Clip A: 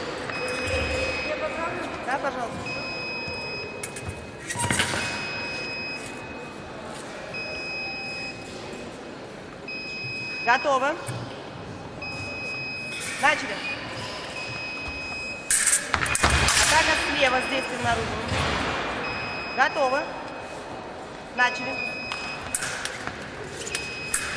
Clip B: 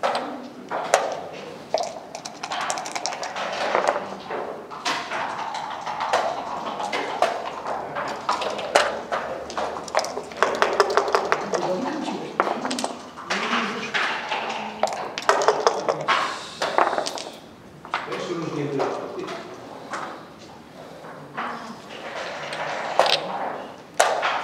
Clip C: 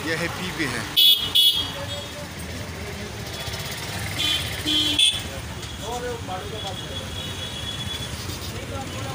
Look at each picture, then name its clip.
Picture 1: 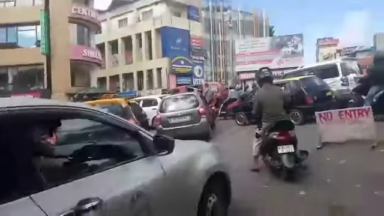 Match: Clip C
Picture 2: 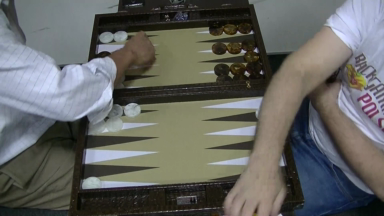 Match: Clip B